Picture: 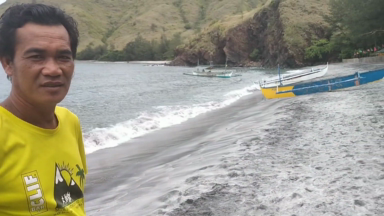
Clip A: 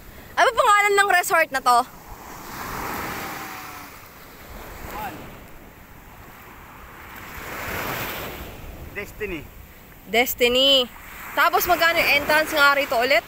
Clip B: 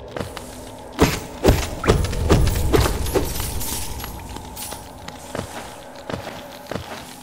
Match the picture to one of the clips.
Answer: A